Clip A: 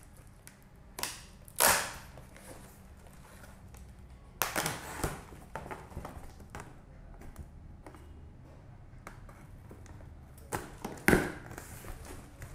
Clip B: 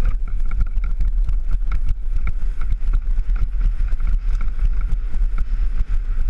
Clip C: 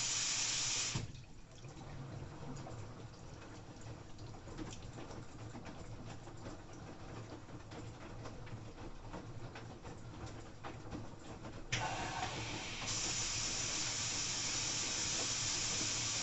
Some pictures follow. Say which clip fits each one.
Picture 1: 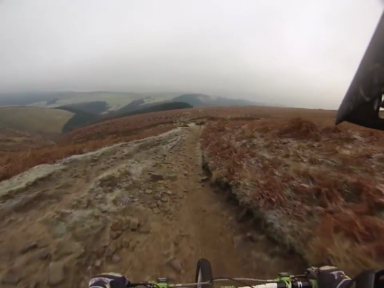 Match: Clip B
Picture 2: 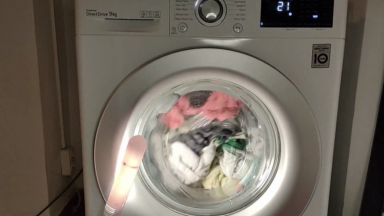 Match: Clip C